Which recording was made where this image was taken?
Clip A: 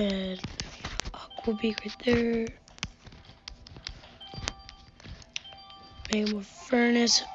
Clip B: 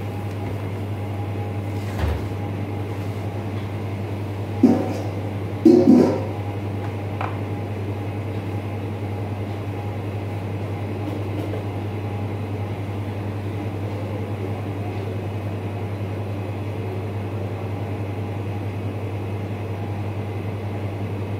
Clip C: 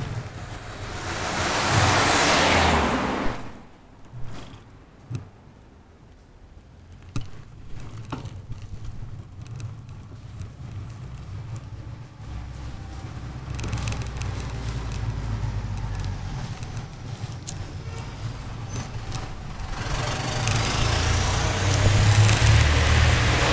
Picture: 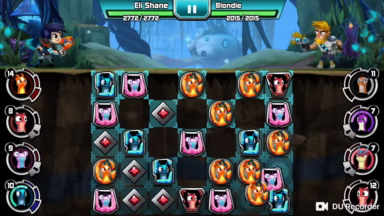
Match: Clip A